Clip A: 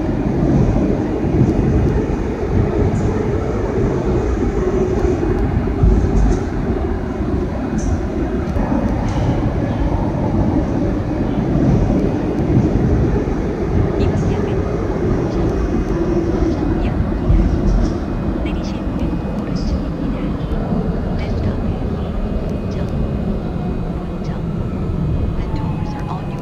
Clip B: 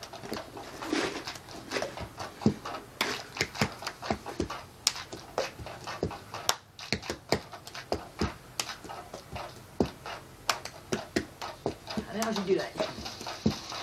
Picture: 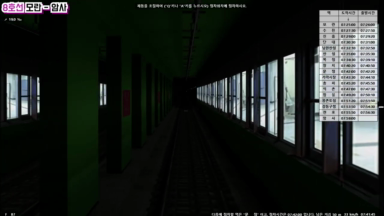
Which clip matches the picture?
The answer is A